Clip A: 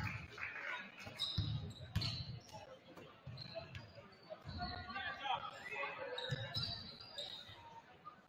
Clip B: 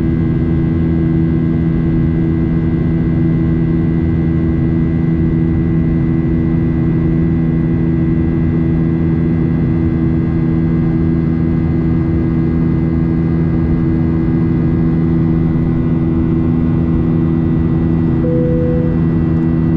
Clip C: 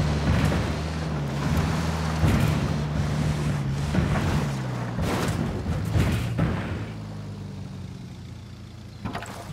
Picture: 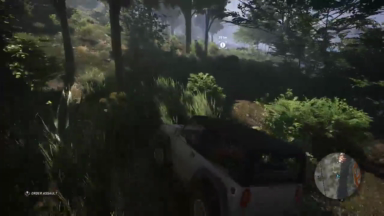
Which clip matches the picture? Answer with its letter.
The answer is C